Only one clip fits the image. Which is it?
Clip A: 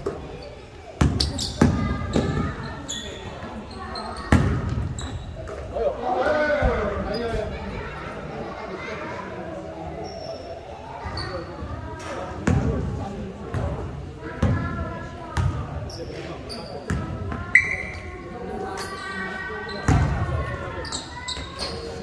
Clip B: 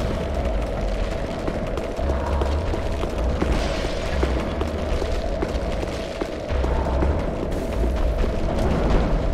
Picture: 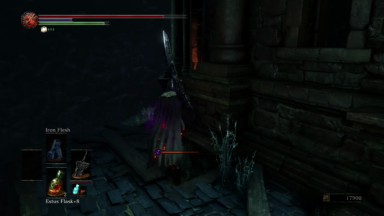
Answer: B